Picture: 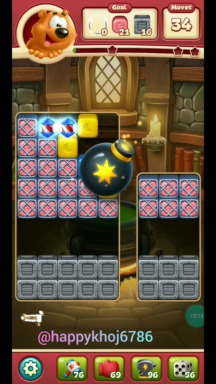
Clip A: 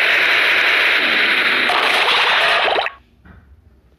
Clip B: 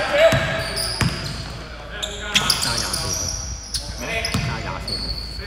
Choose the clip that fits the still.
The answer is A